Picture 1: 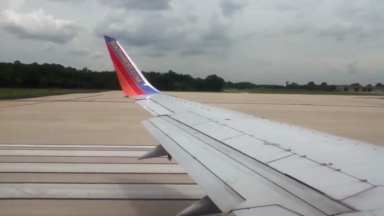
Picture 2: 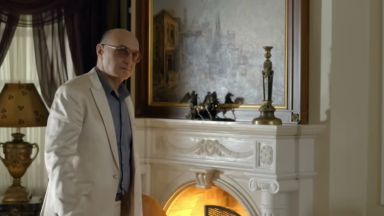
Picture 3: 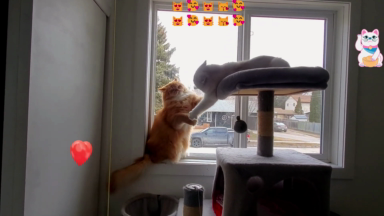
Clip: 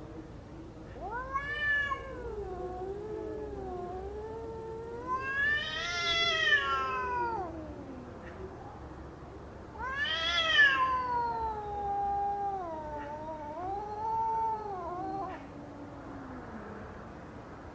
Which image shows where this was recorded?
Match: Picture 3